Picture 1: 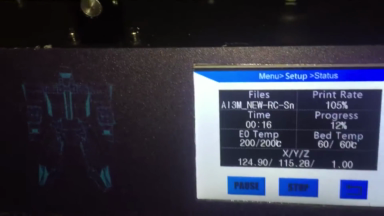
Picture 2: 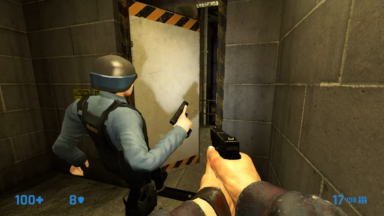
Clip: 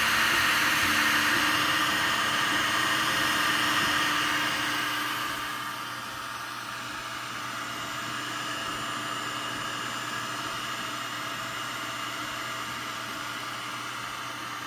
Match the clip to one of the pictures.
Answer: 1